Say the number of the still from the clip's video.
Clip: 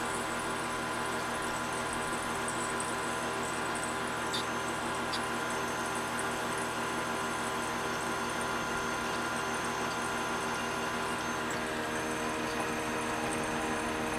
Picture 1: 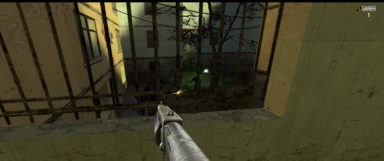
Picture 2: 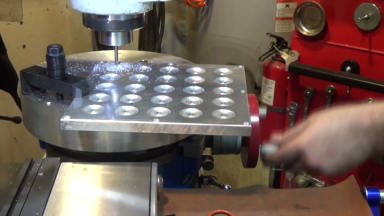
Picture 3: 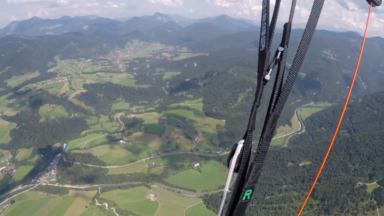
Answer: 2